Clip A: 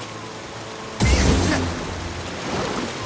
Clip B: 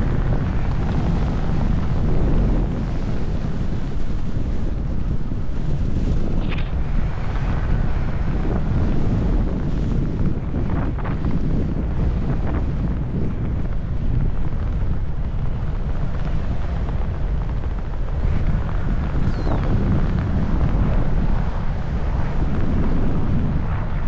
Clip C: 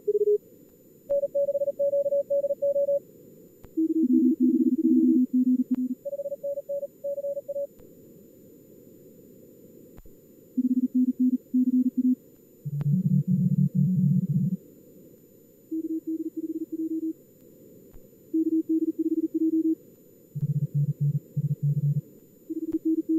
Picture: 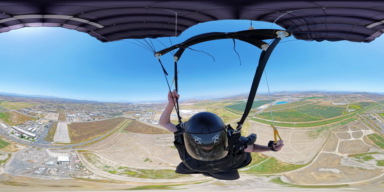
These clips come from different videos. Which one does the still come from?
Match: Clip B